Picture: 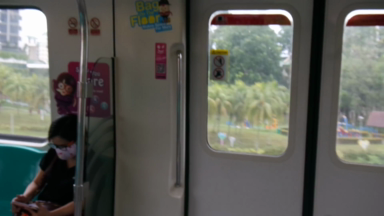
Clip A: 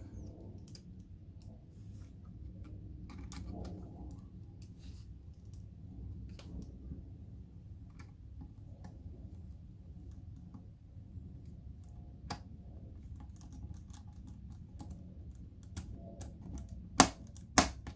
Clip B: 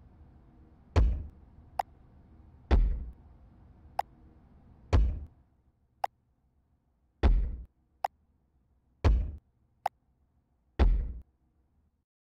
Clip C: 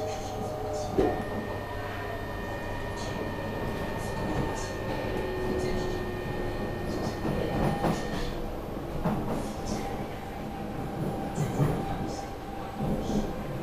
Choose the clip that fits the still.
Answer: C